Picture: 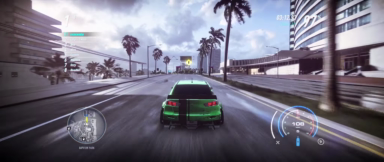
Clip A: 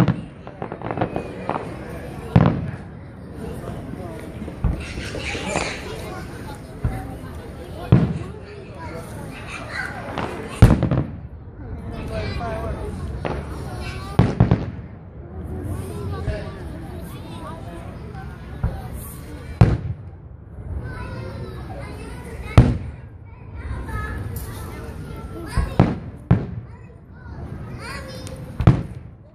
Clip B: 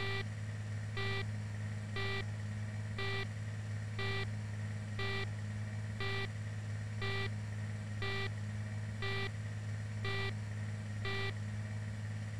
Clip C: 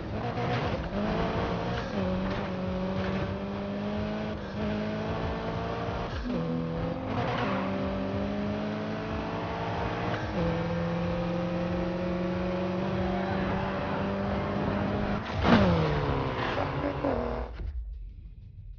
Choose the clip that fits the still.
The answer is C